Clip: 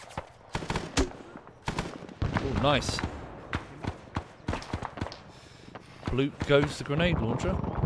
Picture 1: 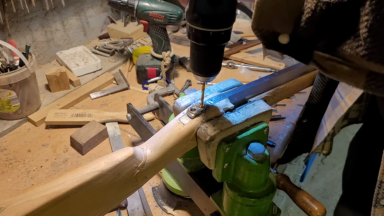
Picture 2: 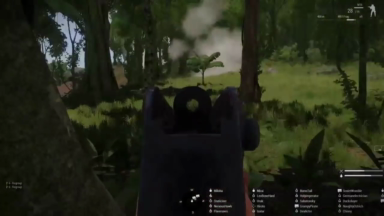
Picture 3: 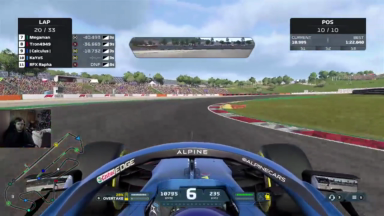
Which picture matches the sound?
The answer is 2